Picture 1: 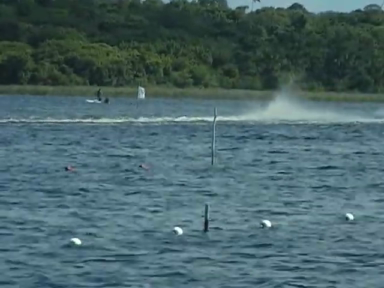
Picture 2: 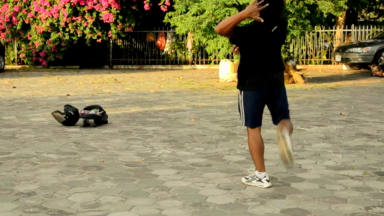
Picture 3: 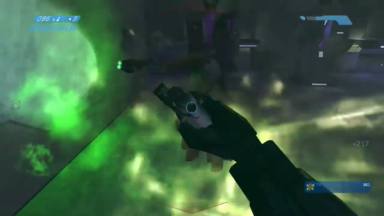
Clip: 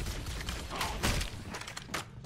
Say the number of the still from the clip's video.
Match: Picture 3